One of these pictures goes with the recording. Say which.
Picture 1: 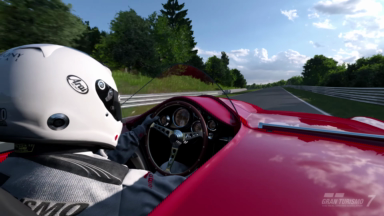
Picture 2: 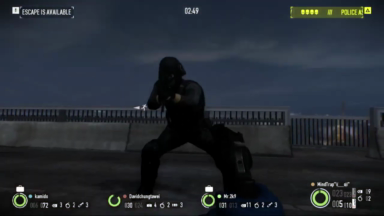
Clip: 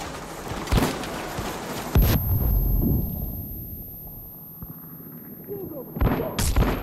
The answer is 2